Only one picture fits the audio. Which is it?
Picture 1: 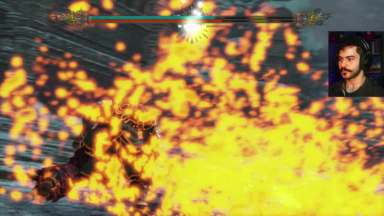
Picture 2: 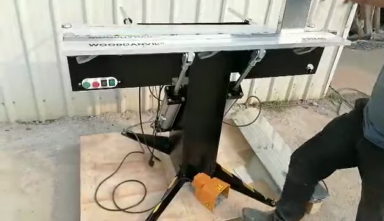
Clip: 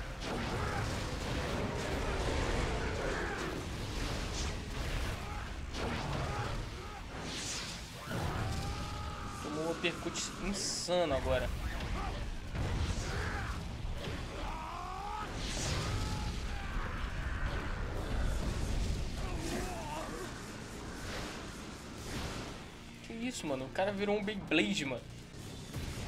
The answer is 1